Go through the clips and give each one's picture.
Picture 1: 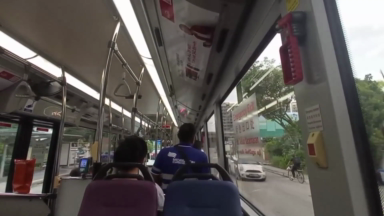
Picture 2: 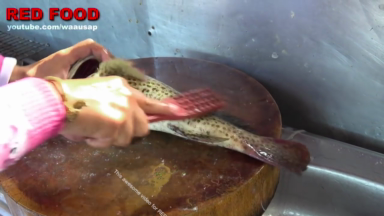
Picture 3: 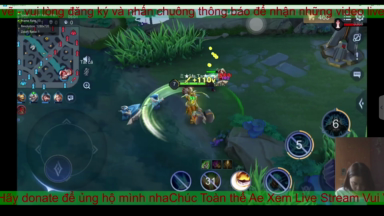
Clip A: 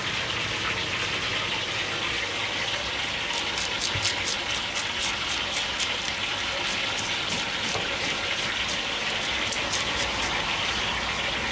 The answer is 2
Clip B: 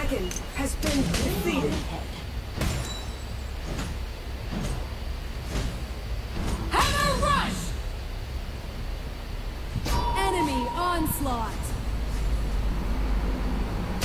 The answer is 3